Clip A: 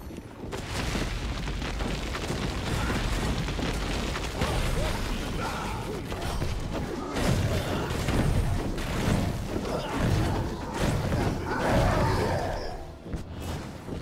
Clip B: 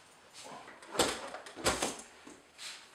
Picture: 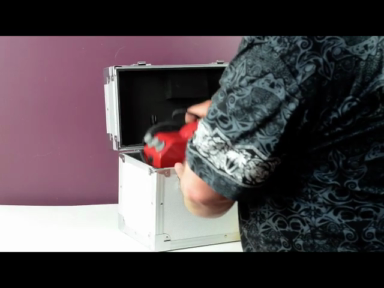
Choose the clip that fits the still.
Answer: B